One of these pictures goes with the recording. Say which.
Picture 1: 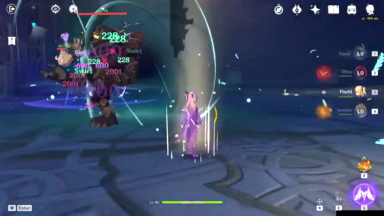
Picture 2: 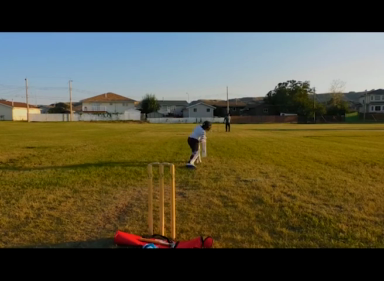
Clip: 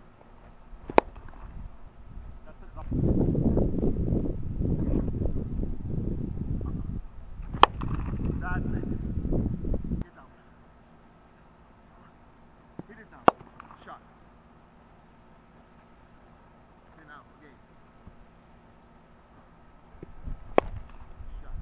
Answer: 2